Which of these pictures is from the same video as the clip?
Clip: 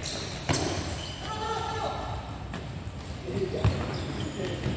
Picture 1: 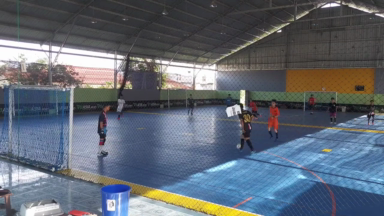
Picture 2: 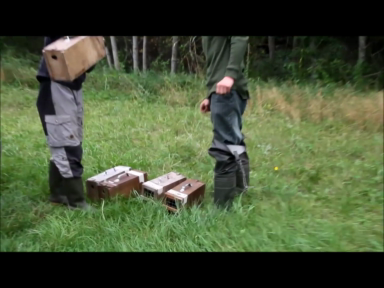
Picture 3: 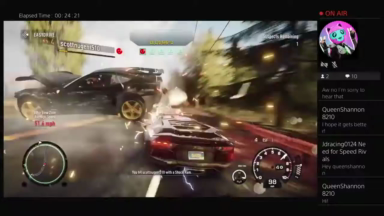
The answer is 1